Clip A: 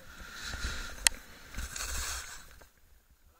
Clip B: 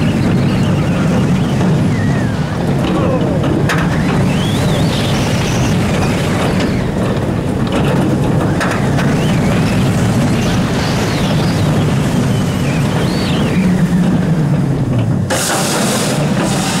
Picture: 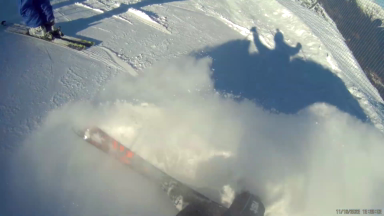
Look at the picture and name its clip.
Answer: A